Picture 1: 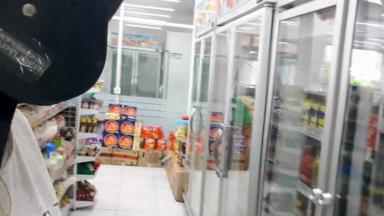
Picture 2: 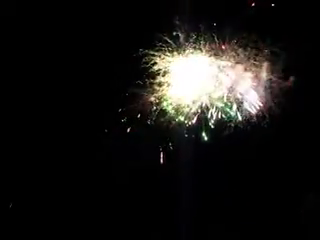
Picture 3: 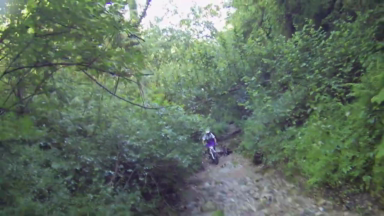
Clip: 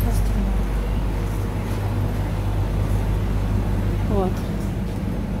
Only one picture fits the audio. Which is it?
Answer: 1